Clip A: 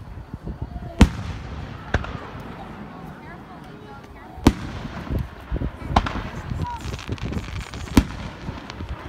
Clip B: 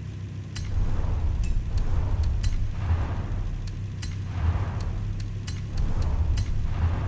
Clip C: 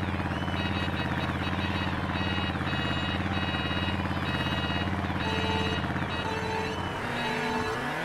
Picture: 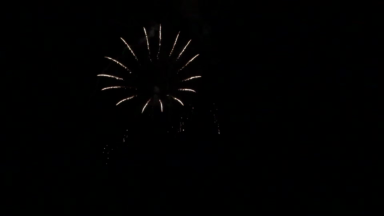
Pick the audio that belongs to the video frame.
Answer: A